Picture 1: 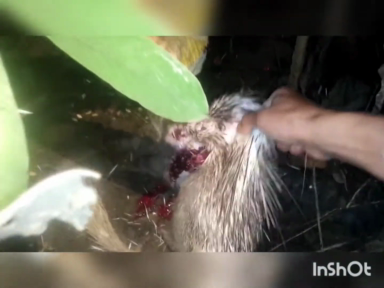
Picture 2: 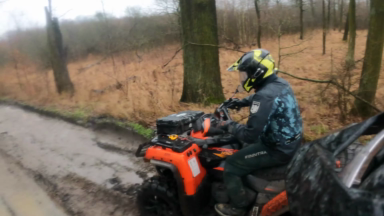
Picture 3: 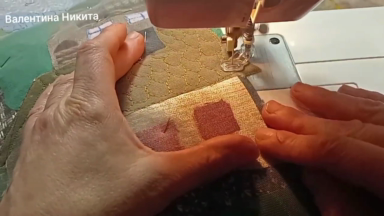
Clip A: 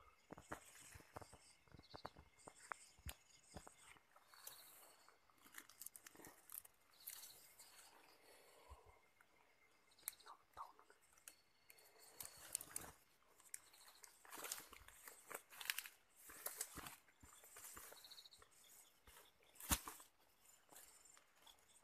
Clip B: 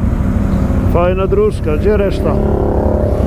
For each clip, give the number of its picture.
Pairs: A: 1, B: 2